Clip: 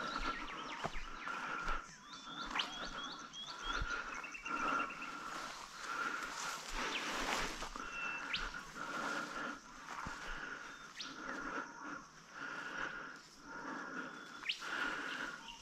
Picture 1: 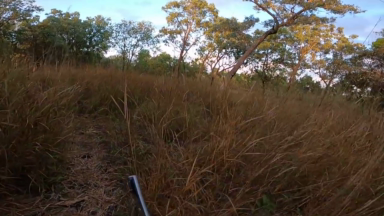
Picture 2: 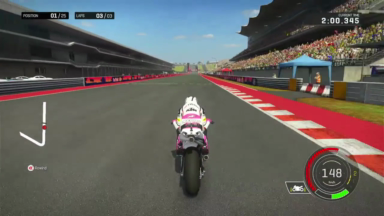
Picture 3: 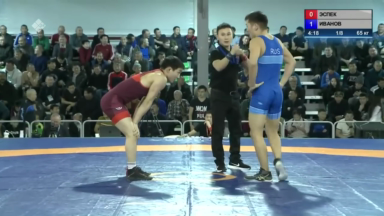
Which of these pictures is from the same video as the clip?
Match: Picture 1